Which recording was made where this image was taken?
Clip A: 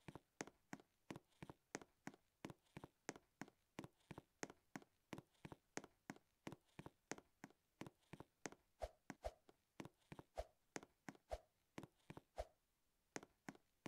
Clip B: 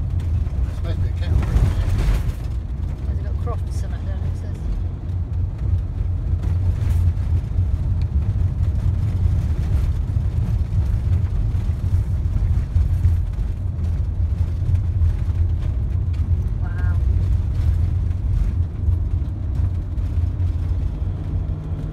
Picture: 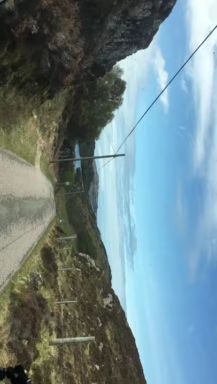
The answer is B